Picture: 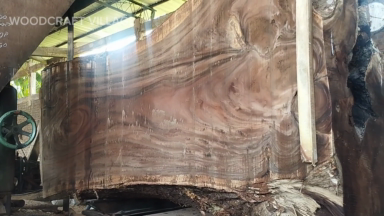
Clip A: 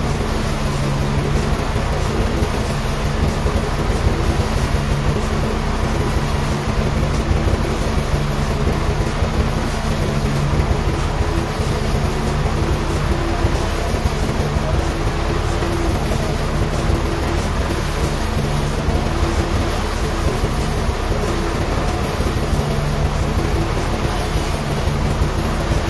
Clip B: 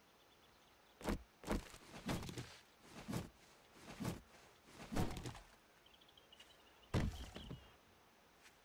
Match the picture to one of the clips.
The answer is A